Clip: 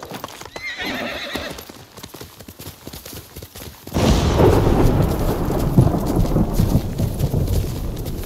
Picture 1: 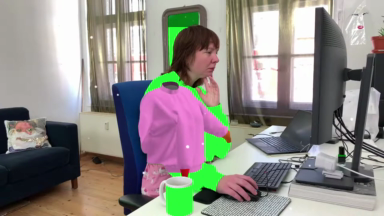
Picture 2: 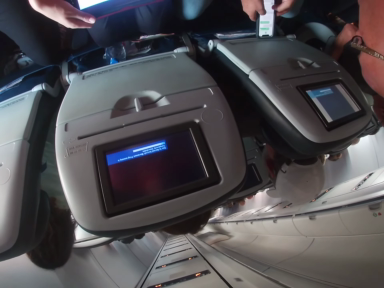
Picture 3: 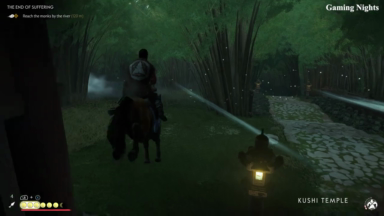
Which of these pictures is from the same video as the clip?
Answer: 3